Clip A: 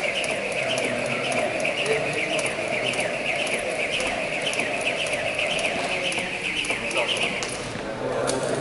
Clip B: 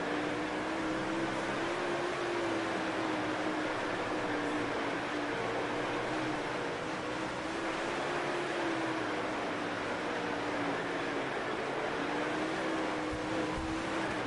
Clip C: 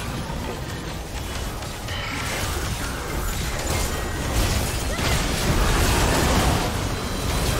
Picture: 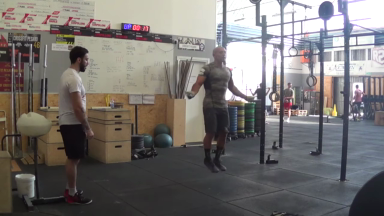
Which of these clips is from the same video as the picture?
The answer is A